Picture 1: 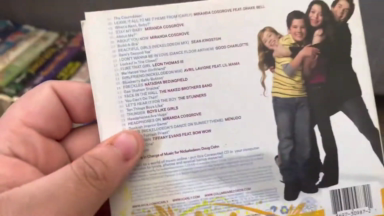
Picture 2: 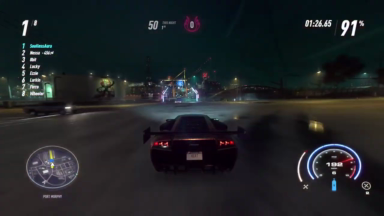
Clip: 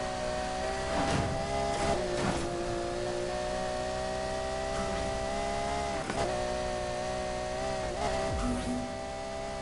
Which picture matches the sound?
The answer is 2